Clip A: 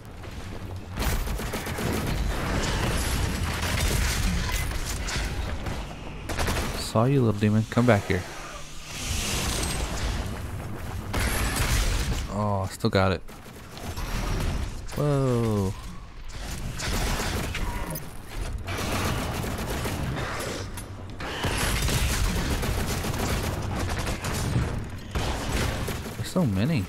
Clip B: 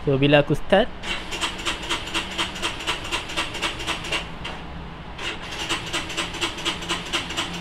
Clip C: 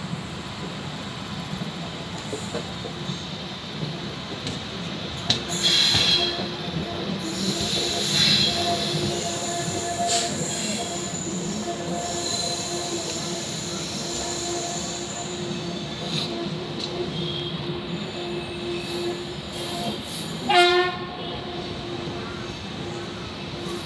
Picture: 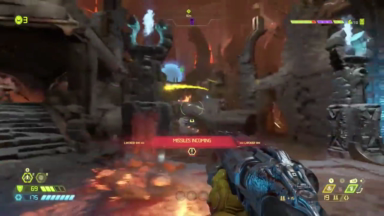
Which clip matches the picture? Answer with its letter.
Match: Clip A